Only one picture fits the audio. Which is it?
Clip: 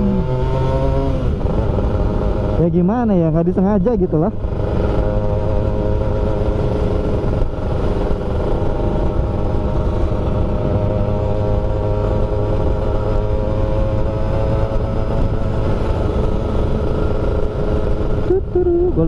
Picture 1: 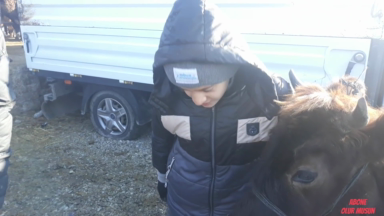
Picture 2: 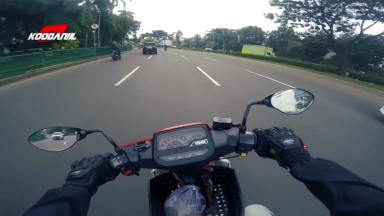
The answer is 2